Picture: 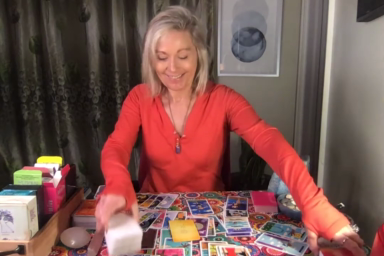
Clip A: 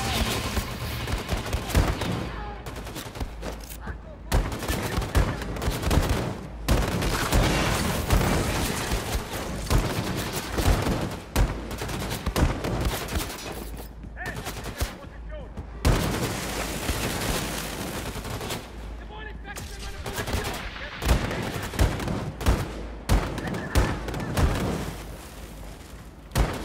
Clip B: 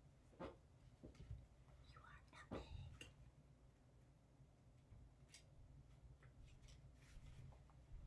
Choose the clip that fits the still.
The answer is B